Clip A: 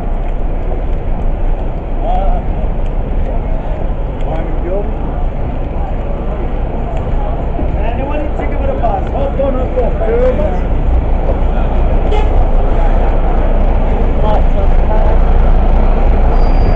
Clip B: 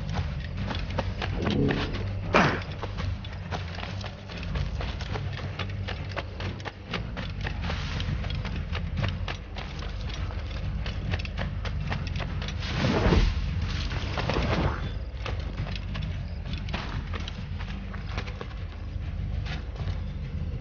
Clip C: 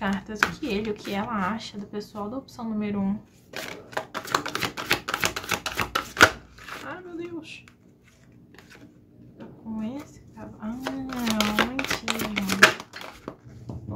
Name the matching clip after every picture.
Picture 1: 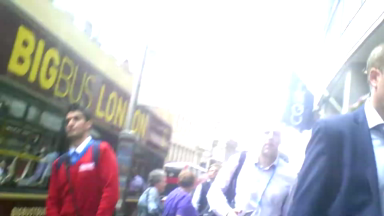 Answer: A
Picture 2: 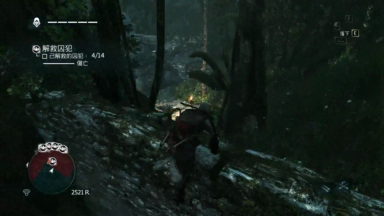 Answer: B